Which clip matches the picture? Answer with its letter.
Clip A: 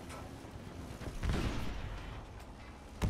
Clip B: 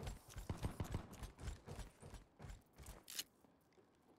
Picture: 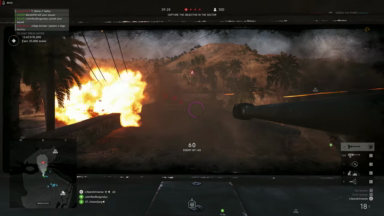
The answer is A